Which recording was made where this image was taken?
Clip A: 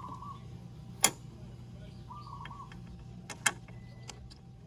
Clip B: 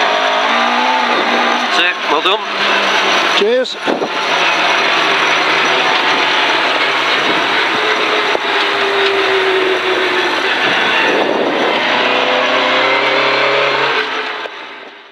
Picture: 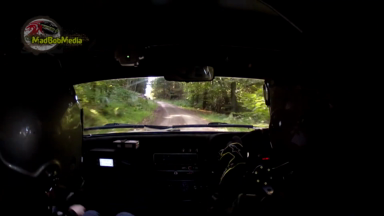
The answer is B